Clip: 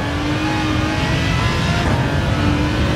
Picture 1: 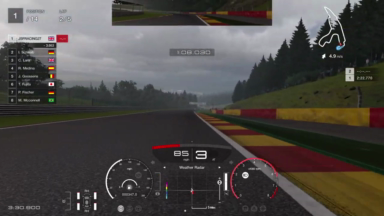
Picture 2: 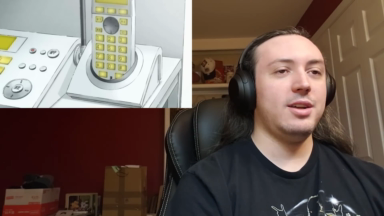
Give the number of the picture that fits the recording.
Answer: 1